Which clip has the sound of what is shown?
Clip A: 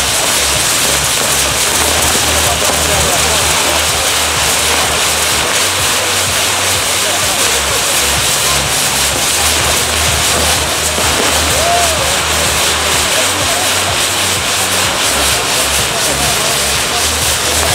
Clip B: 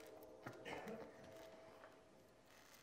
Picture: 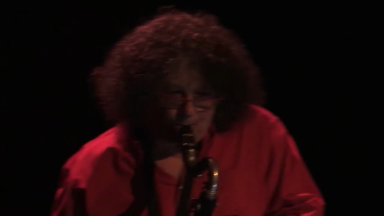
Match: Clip B